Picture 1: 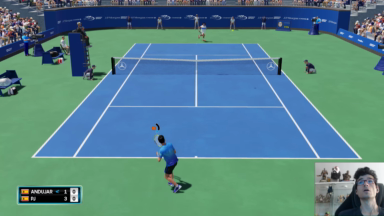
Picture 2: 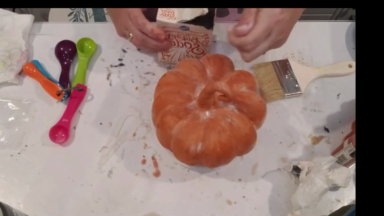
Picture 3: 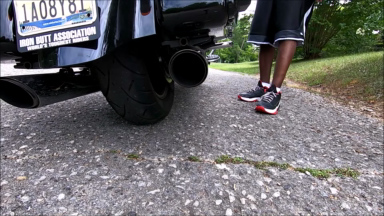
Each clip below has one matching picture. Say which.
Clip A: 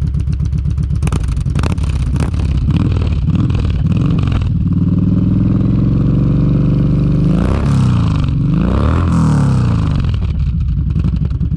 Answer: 3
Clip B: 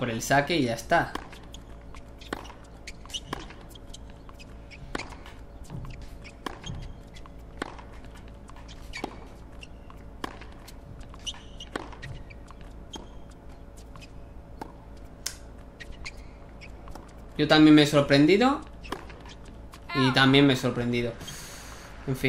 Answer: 1